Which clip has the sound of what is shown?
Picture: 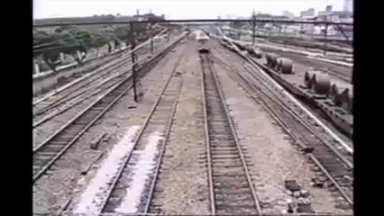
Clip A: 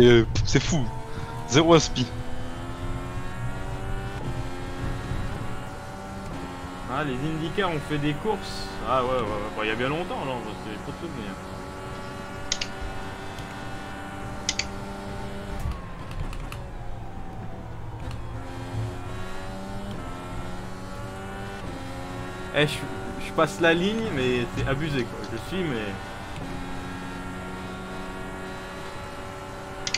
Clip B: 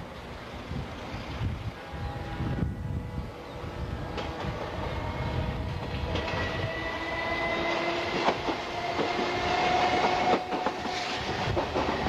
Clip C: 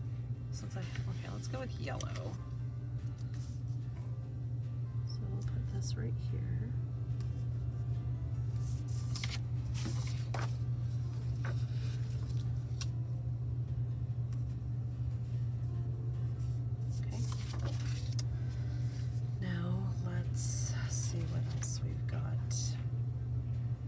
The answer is B